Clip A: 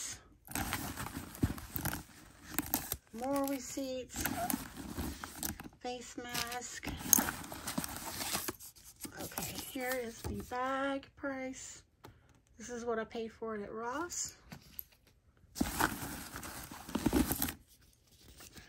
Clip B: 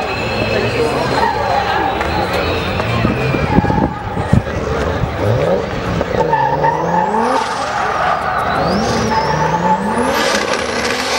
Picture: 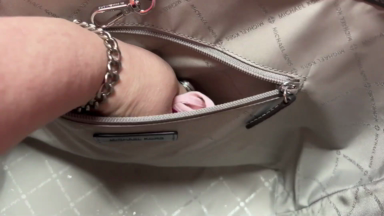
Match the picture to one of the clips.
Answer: A